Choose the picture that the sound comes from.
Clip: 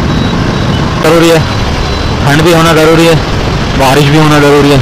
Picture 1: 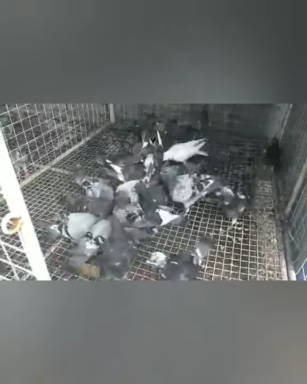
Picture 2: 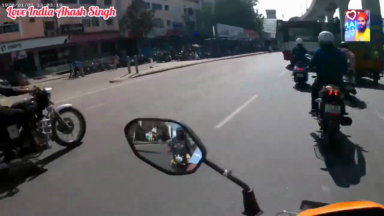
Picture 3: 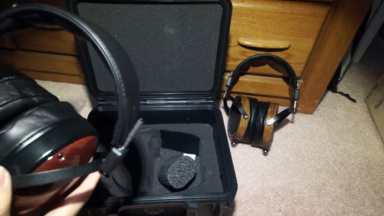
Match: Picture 2